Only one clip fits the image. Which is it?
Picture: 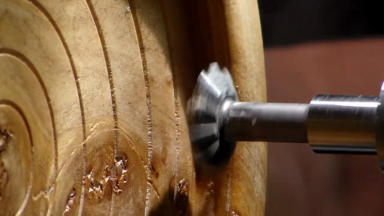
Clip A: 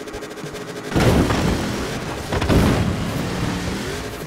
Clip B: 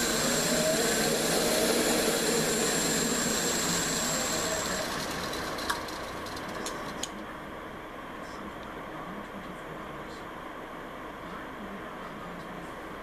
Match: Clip B